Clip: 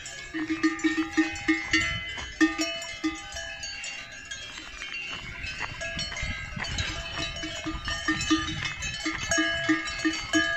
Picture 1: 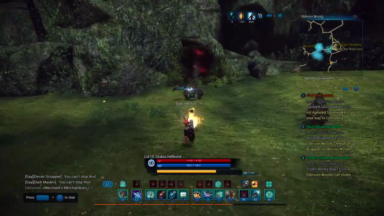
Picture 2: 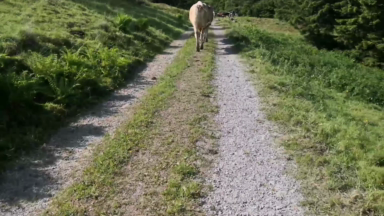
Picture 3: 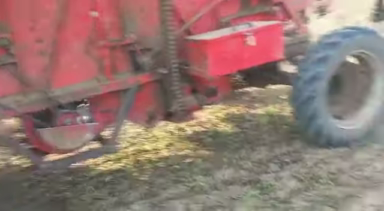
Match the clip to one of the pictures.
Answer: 2